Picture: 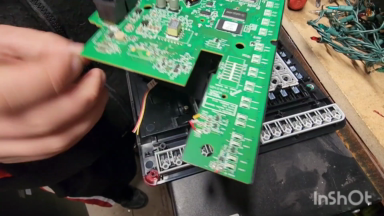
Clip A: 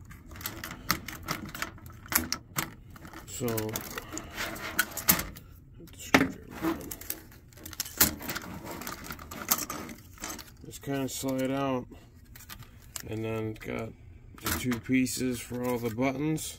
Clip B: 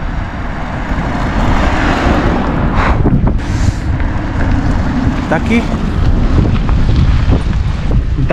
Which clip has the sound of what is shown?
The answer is A